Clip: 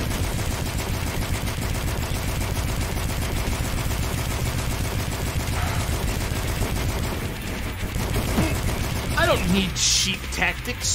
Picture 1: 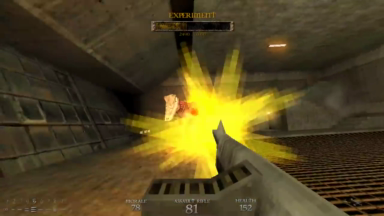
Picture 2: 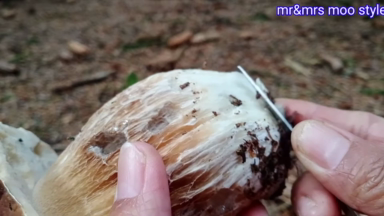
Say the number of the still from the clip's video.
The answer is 1